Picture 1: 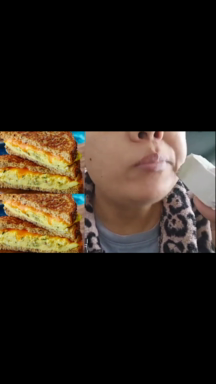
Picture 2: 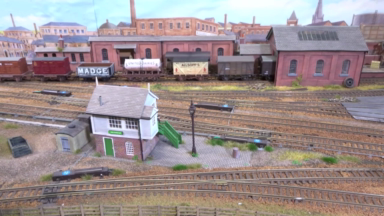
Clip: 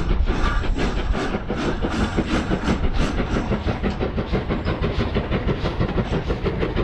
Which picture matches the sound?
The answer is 2